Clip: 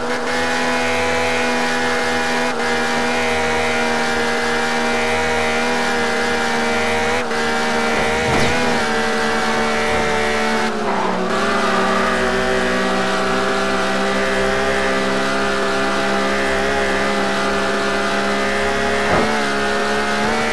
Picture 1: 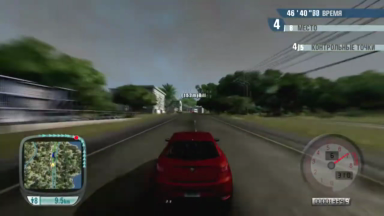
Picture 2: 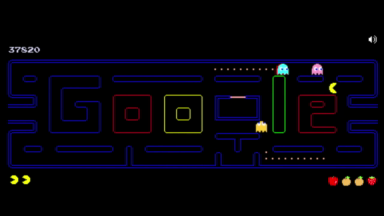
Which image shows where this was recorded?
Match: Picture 1